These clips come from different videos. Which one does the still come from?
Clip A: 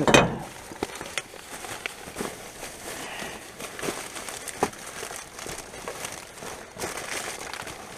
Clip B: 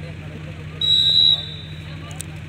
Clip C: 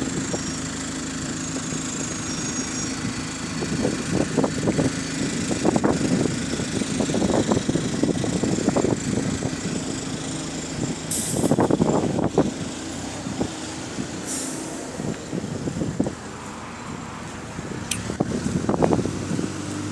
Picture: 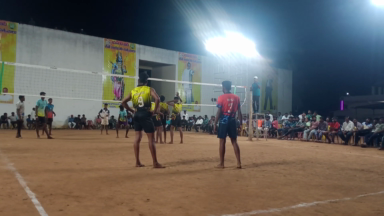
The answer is B